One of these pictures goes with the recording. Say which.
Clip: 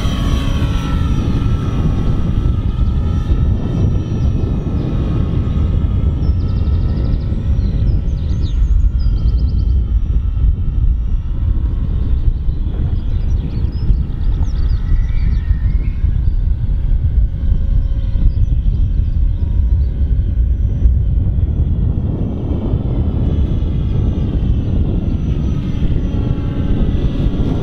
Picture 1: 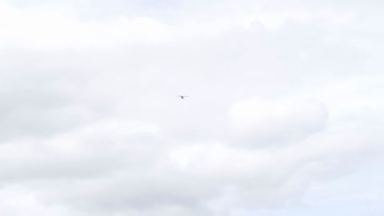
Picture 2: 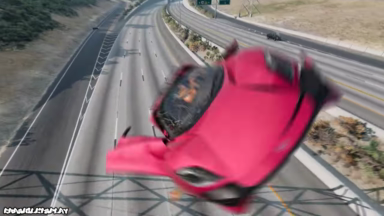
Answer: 1